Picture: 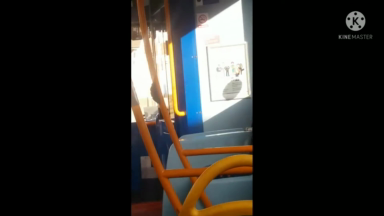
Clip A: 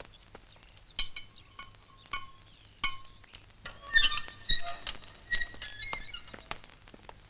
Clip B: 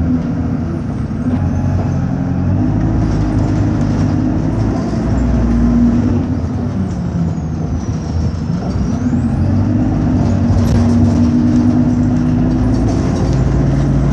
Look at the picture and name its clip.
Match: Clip B